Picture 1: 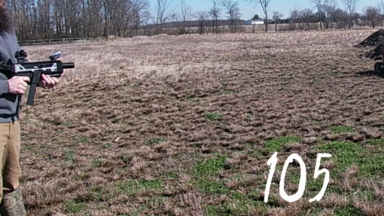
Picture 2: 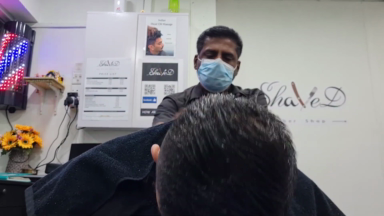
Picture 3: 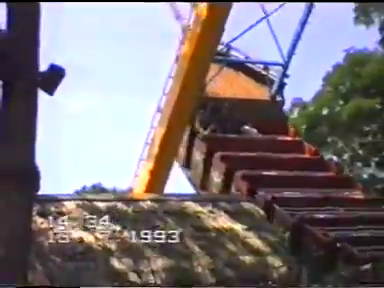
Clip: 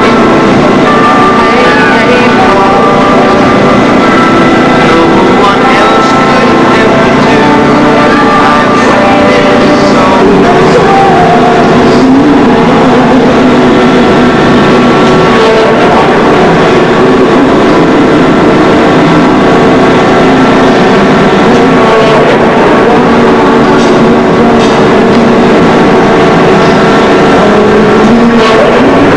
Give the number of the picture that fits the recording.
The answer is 3